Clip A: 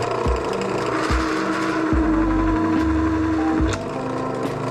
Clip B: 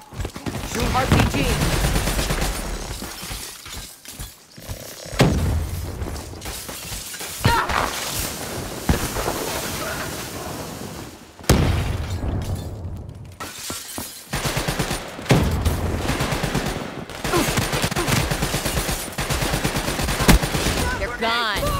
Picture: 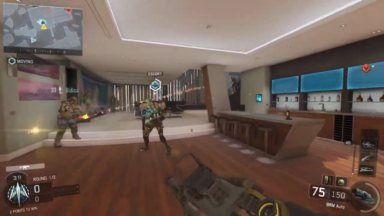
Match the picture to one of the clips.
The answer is B